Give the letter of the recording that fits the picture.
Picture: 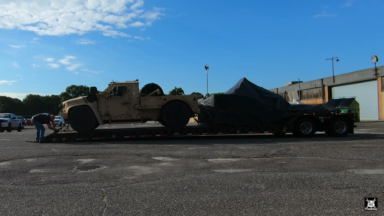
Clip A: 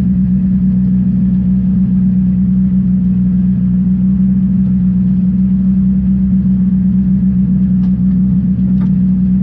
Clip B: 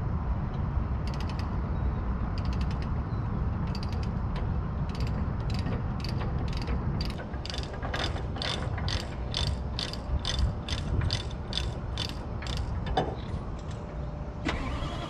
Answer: B